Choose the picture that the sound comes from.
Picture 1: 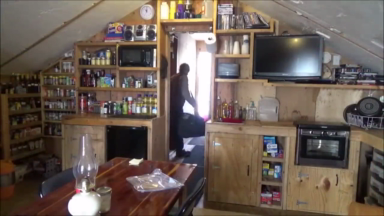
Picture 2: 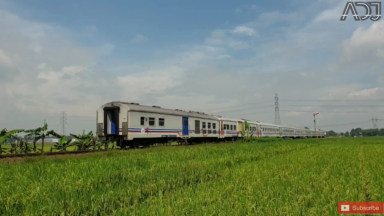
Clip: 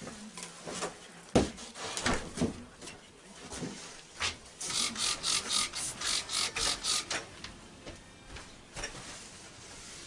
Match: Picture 1